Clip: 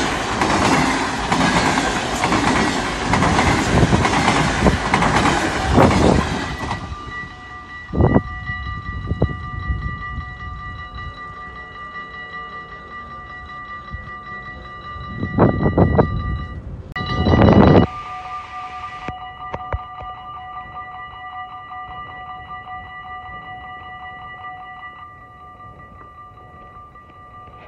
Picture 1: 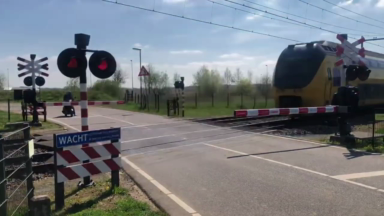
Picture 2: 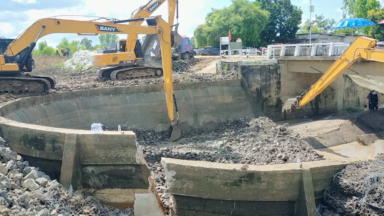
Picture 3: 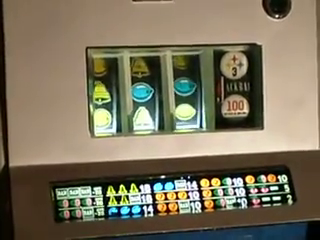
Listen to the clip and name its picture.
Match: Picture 1